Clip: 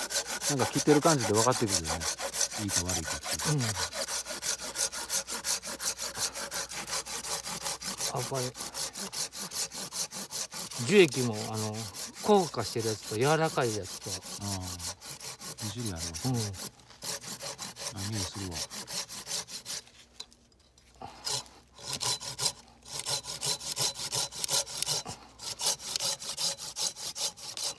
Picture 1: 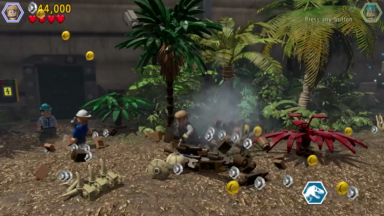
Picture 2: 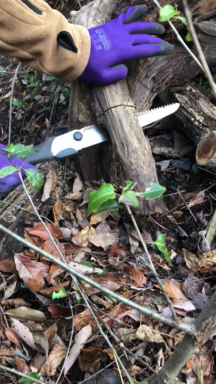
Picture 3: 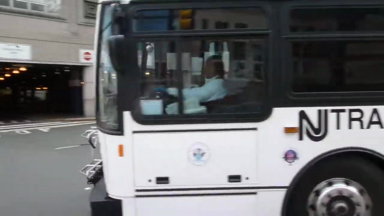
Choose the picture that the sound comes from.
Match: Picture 2